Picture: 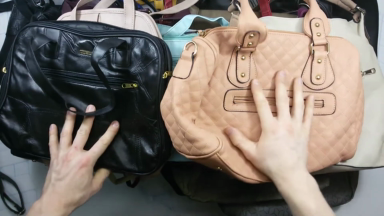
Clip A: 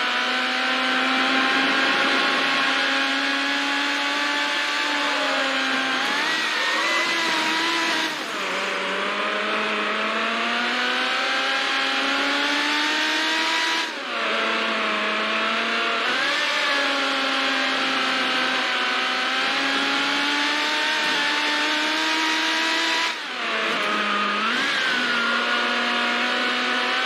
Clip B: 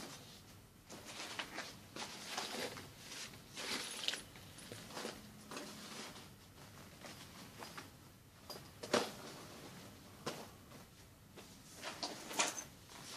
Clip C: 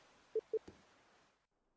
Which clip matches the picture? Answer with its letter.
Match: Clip B